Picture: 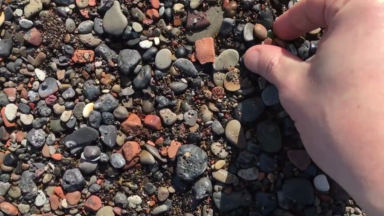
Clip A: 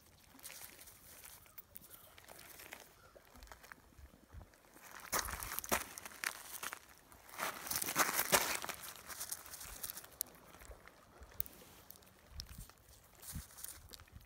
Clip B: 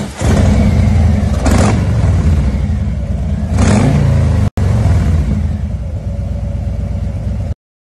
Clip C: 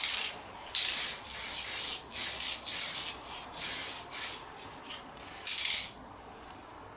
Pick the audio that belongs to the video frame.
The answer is A